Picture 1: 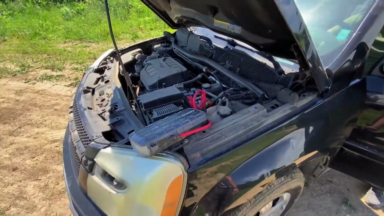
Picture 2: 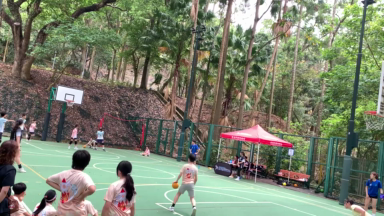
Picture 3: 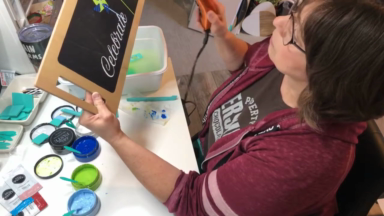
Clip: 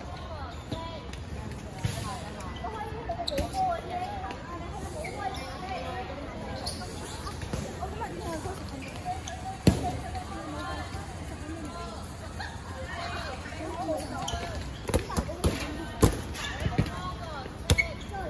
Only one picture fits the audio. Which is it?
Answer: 2